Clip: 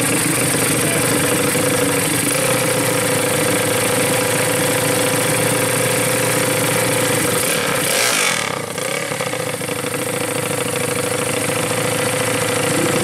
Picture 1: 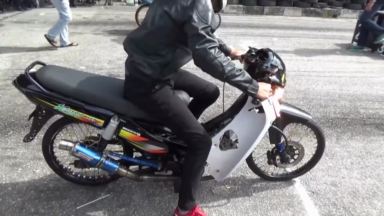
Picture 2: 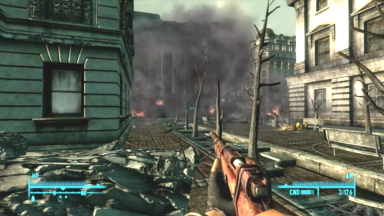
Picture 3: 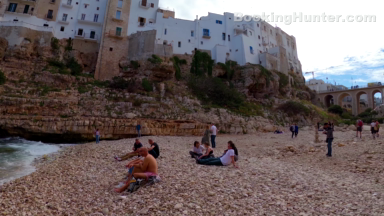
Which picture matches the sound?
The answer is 1